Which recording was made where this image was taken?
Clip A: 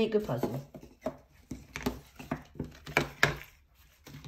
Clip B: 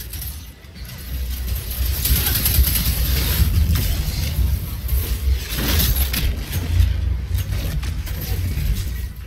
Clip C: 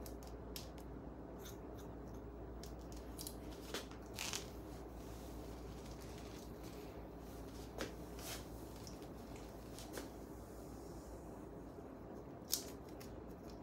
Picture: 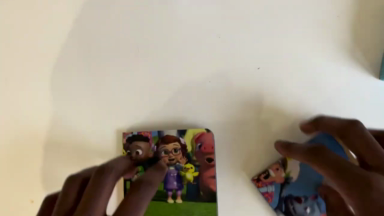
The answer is A